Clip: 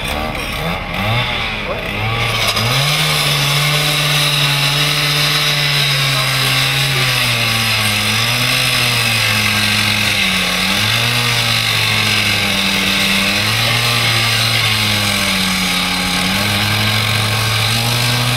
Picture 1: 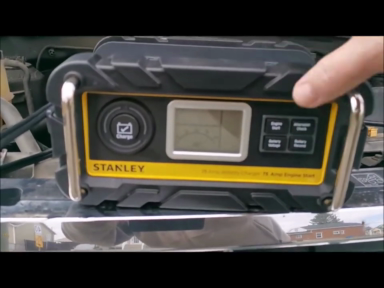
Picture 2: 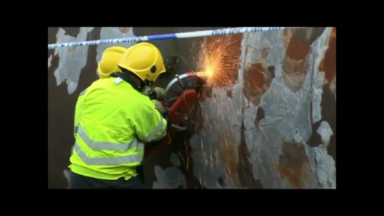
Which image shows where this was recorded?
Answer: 2